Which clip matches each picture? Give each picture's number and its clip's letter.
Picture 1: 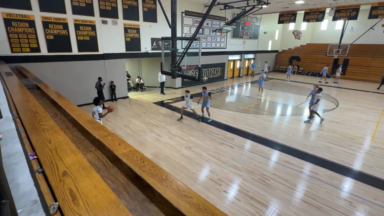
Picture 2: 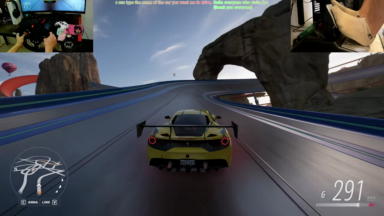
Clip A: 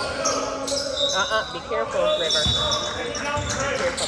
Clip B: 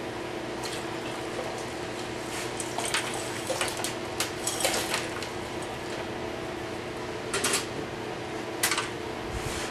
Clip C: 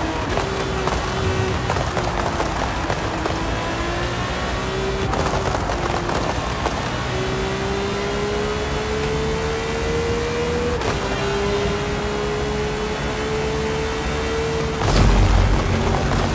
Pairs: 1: A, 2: C